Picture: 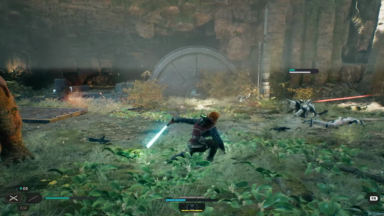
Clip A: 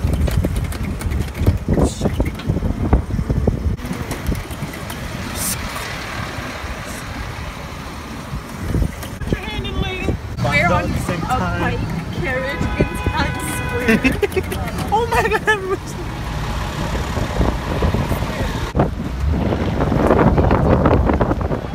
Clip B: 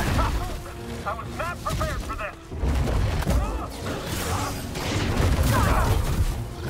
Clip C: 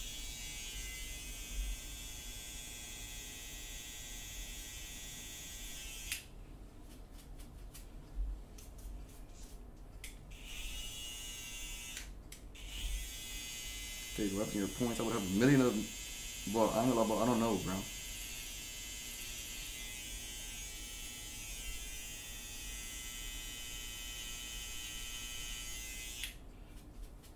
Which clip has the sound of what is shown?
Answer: B